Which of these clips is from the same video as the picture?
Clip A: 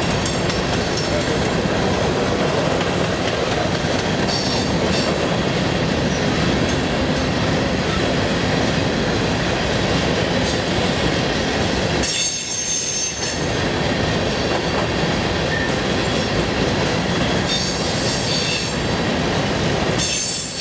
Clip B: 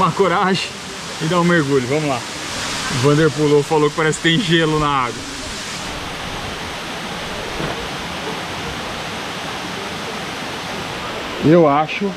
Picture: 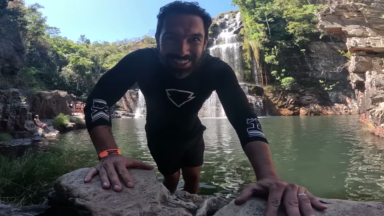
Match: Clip B